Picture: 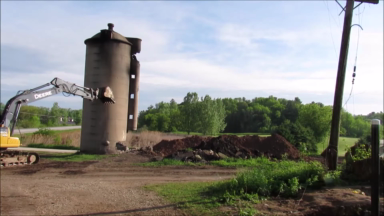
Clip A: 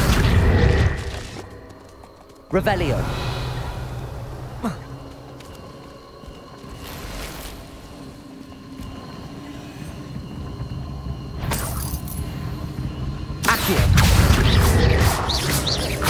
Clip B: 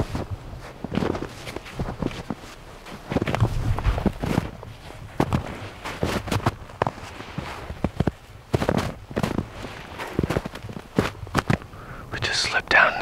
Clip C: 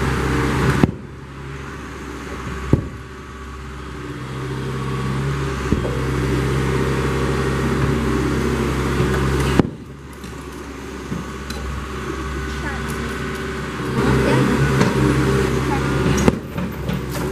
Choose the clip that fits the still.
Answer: C